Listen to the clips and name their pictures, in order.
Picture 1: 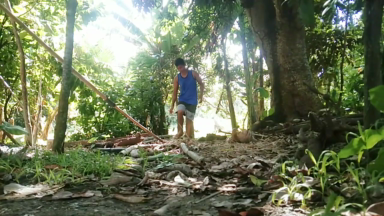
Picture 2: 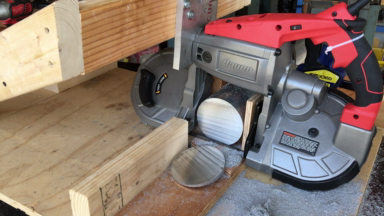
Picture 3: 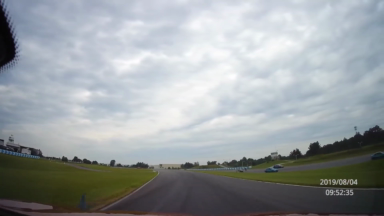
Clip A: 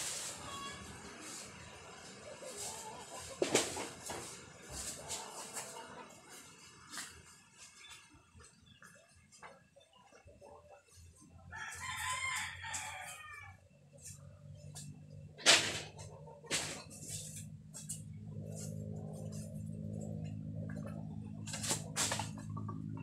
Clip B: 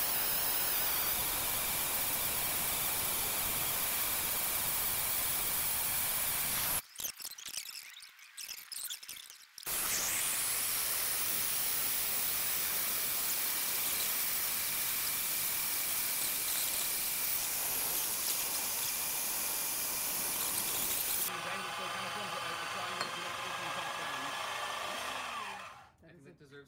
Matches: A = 1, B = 2